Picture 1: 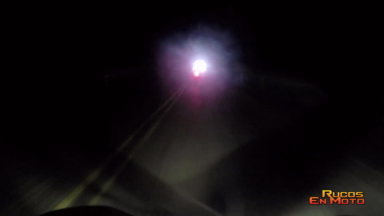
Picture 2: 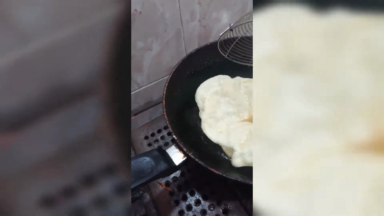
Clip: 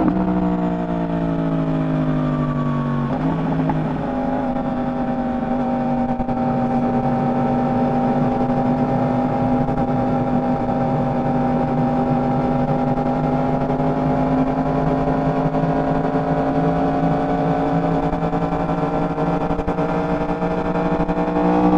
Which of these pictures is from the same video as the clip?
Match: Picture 1